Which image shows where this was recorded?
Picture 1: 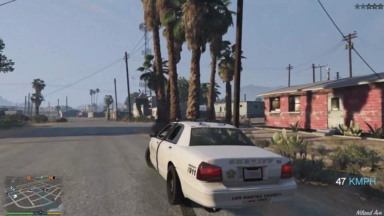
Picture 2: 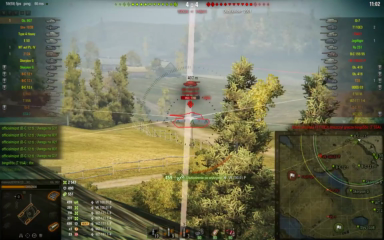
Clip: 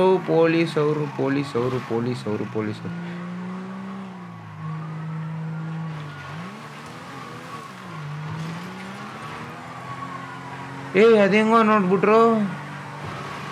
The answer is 1